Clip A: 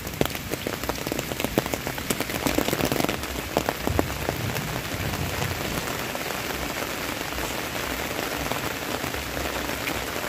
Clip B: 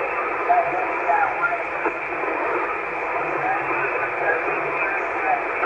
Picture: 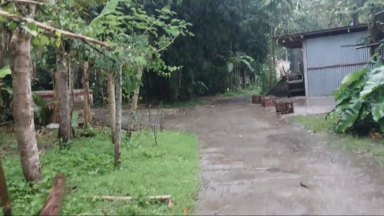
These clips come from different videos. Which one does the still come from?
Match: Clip A